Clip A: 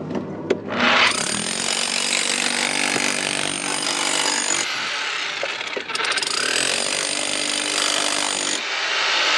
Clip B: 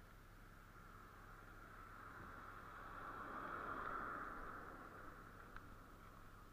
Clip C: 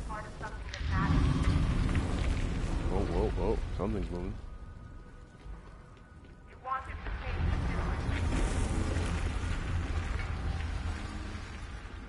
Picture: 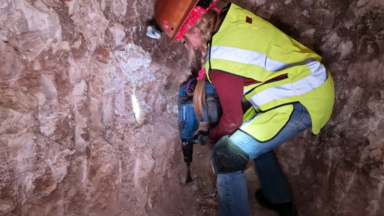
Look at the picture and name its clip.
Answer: A